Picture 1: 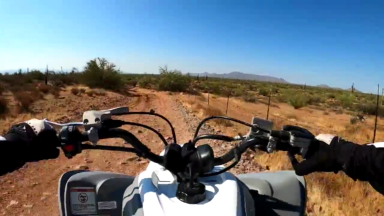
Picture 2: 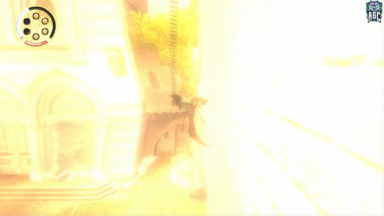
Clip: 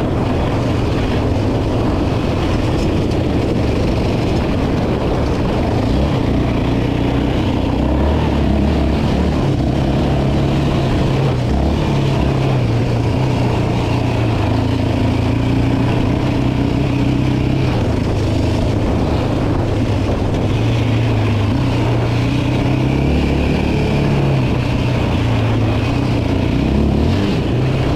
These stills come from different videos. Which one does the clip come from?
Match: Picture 1